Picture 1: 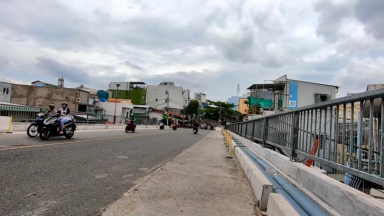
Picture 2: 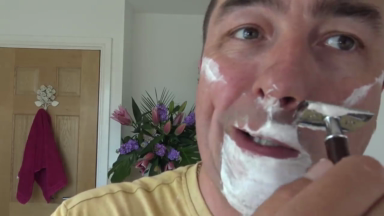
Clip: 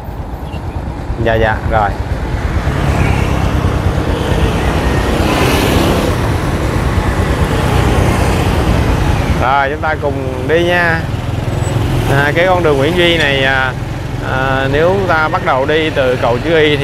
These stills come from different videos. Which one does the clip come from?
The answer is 1